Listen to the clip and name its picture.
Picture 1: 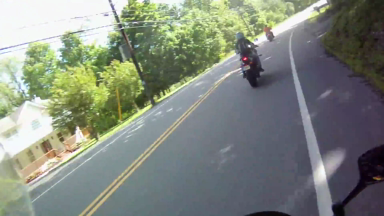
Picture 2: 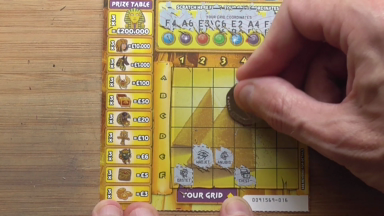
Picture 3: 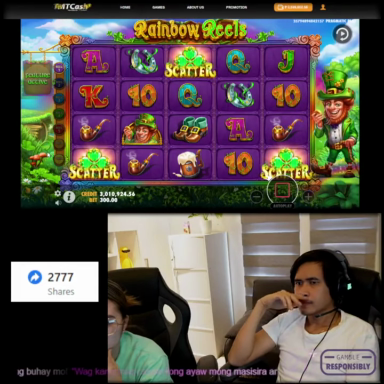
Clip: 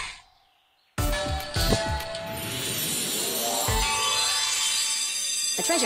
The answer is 3